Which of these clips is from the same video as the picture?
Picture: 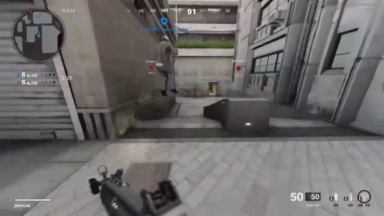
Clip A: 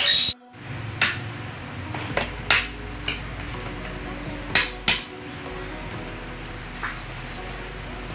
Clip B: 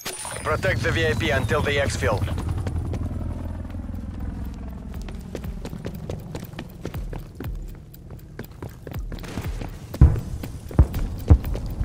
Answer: B